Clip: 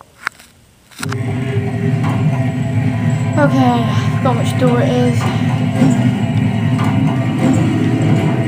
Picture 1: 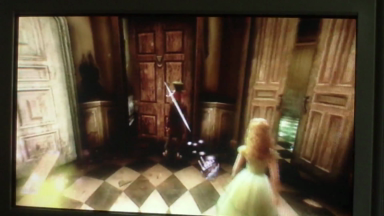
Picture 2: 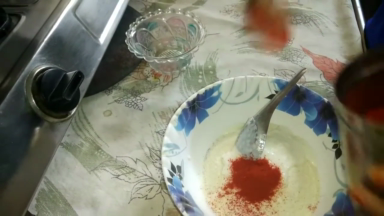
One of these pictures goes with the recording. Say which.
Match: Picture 1